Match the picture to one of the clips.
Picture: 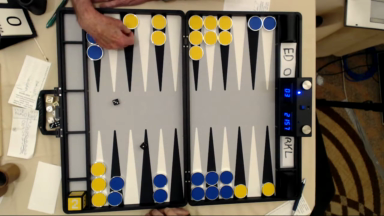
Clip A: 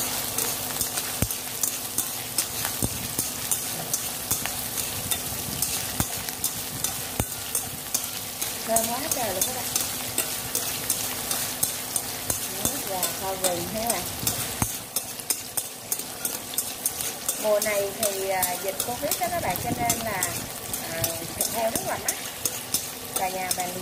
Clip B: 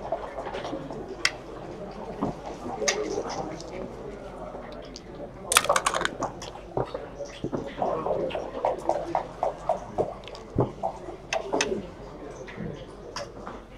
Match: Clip B